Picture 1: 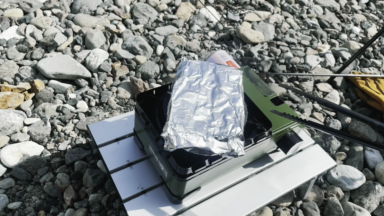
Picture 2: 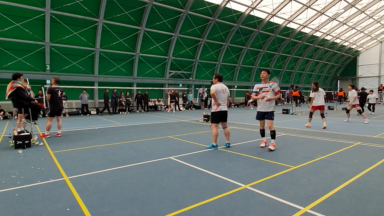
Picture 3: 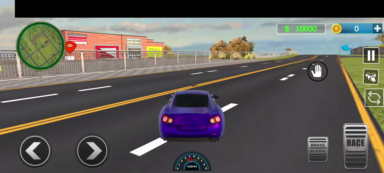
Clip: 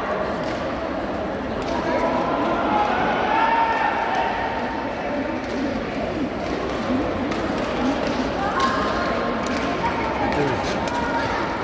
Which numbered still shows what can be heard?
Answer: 2